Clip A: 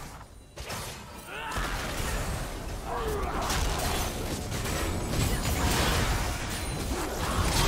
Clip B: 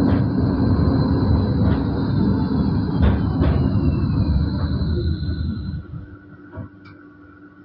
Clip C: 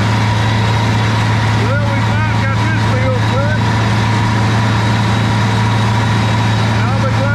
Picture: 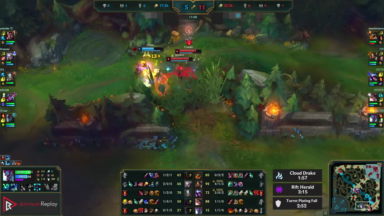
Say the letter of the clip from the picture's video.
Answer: A